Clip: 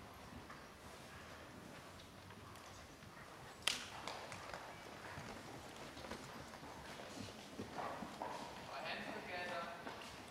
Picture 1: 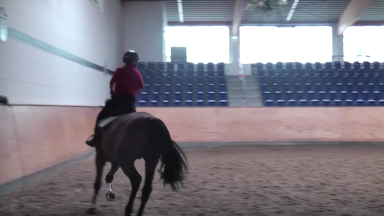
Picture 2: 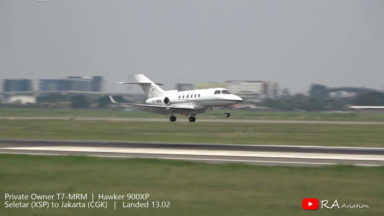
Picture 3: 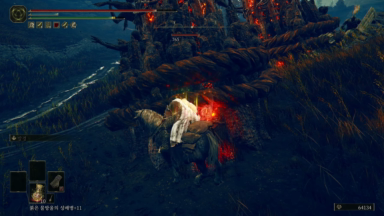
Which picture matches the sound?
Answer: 1